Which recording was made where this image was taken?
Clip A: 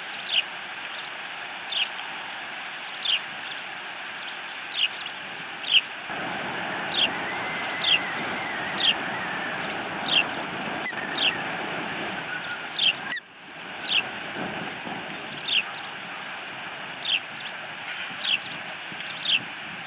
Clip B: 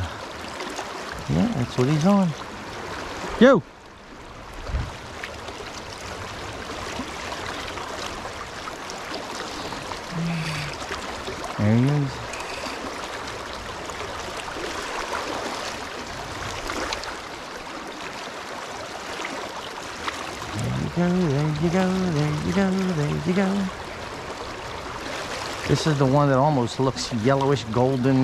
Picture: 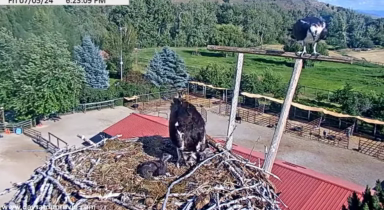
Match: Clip A